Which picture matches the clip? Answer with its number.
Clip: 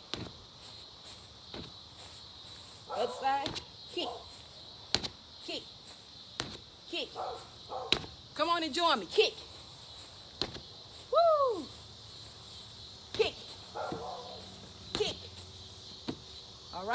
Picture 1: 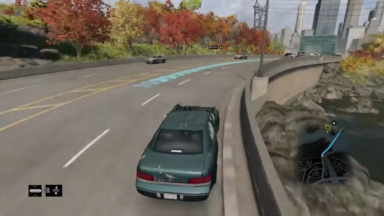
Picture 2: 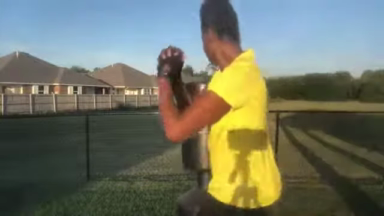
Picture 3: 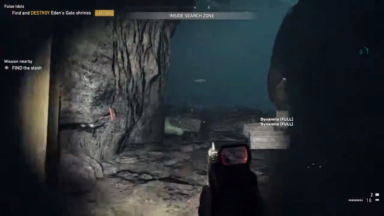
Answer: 2